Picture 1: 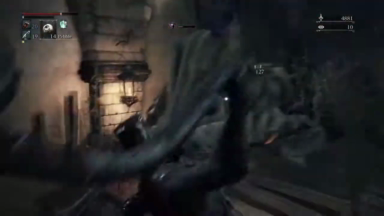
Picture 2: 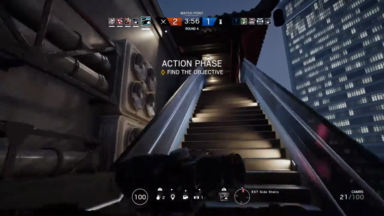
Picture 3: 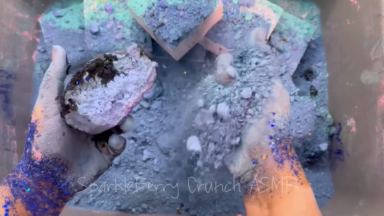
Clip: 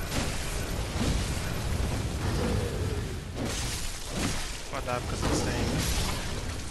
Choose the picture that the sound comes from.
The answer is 1